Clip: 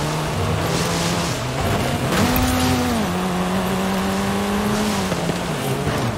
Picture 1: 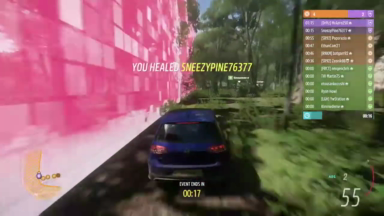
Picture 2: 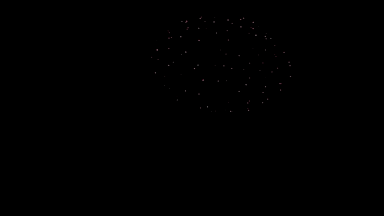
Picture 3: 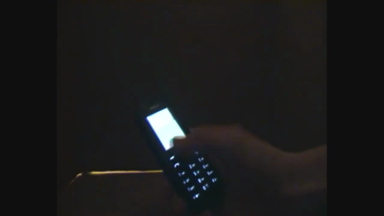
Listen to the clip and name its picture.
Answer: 1